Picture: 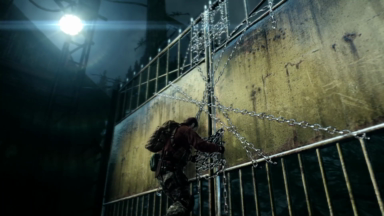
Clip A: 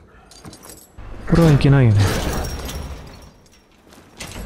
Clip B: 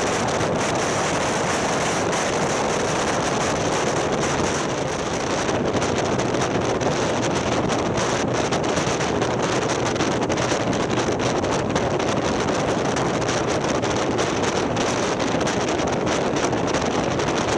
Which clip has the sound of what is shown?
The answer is A